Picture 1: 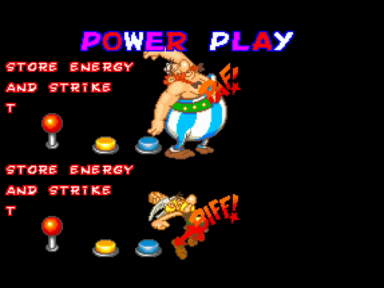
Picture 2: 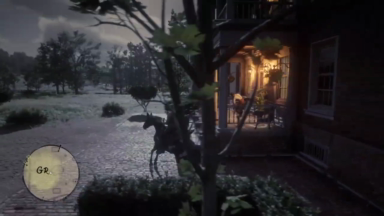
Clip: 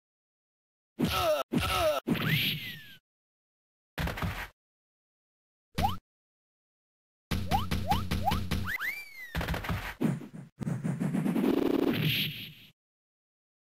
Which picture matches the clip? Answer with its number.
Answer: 1